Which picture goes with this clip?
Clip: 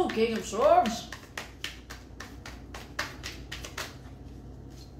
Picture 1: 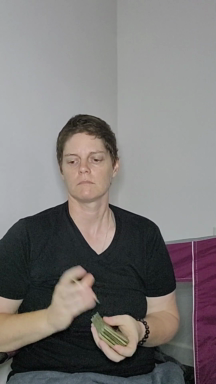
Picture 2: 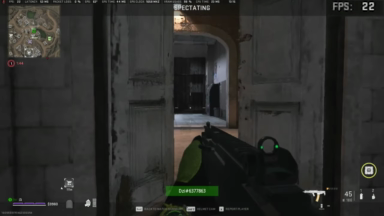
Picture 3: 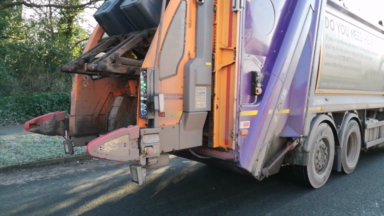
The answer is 1